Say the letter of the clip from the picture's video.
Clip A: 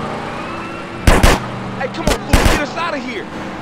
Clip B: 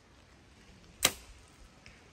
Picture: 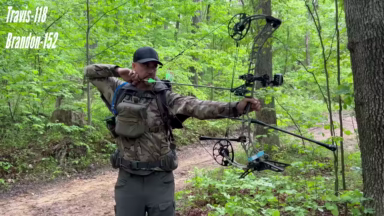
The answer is B